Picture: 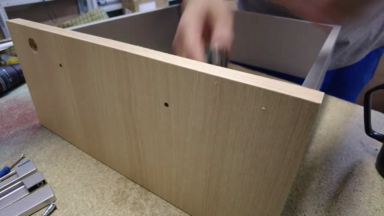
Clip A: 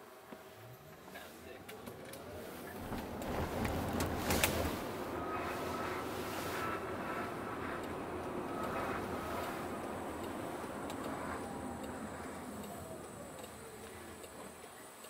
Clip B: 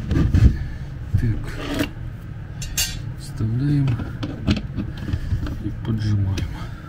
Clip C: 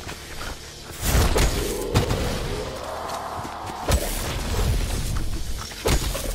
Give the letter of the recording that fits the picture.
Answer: B